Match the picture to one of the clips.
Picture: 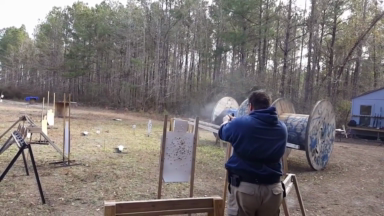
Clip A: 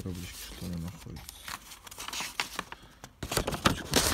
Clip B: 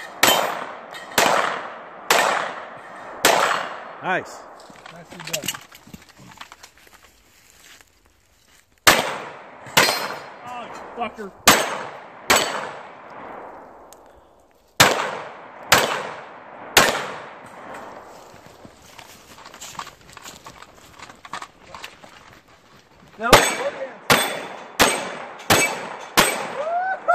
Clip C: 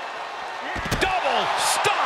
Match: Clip B